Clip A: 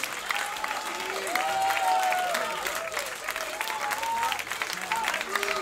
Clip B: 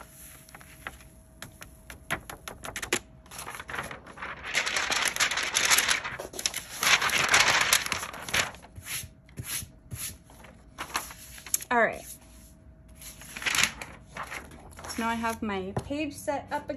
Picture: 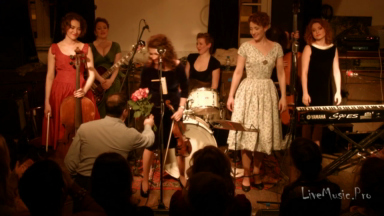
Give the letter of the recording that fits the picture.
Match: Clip A